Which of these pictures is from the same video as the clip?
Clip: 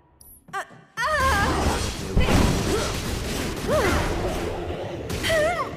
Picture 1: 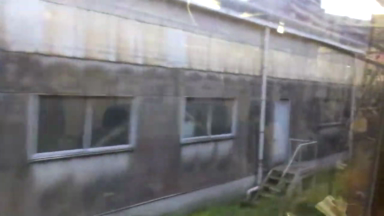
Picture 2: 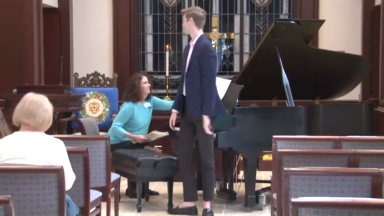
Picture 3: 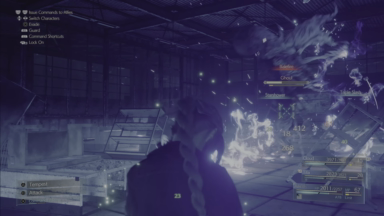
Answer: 3